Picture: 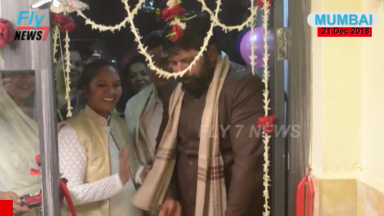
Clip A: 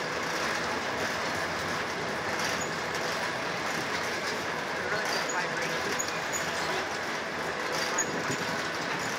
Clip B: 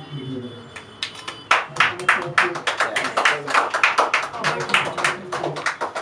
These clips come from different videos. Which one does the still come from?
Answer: B